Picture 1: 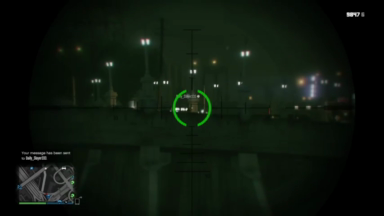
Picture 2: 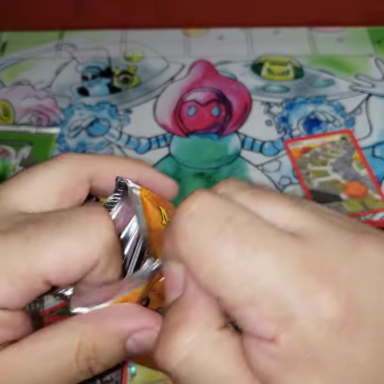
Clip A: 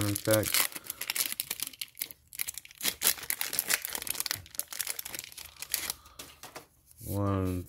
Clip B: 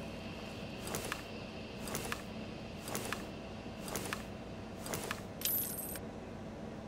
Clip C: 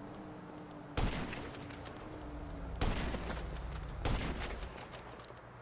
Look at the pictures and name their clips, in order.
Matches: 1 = C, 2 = A